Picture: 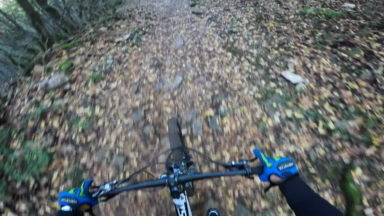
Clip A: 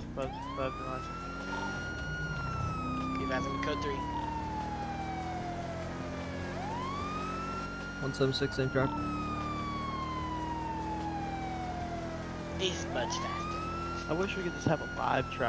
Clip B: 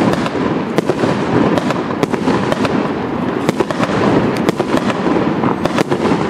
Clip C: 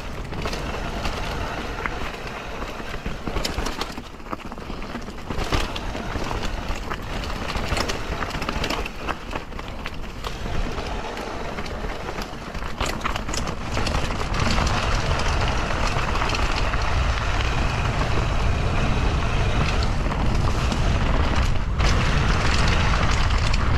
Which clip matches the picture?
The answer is C